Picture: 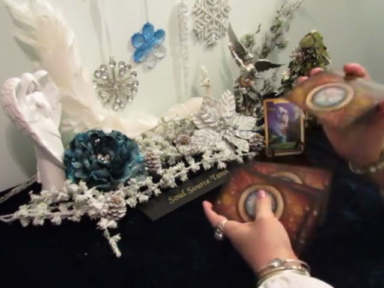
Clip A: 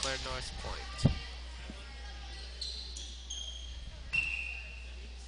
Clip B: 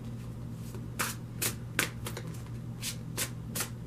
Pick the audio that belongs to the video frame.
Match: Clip B